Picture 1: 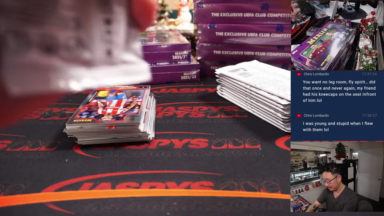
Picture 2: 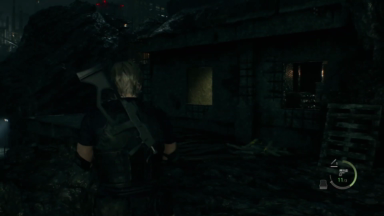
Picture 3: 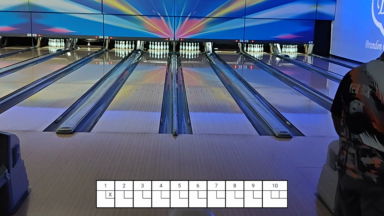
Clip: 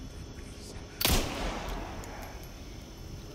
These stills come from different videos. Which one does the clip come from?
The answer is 2